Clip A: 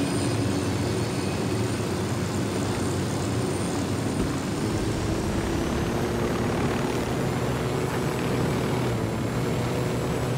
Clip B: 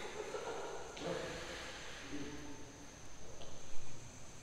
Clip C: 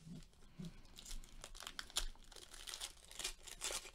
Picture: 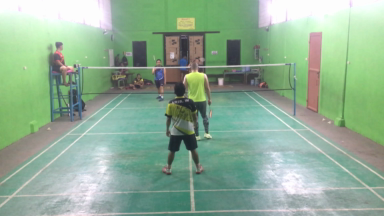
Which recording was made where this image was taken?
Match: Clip B